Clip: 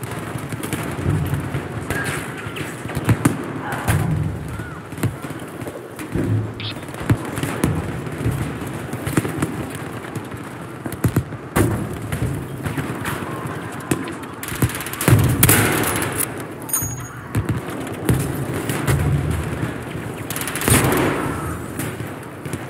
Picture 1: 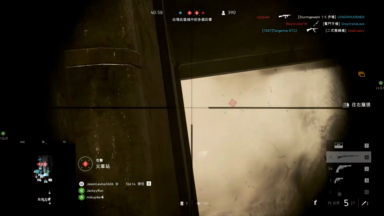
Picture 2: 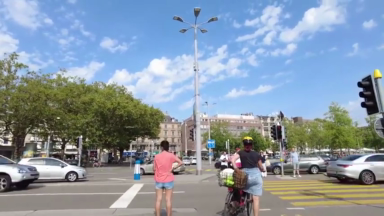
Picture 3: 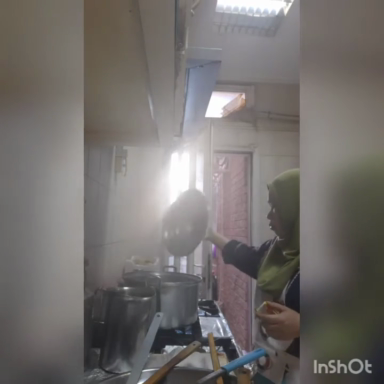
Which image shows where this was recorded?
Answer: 1